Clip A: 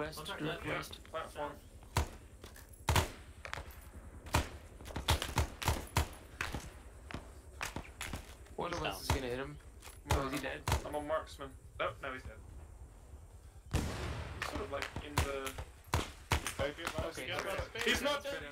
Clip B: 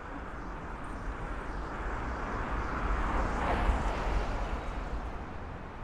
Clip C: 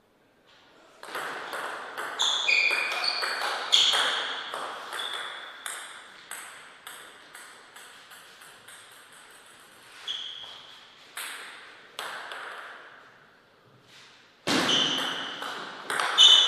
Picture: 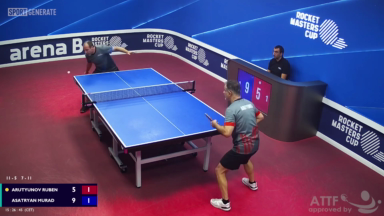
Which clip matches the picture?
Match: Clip C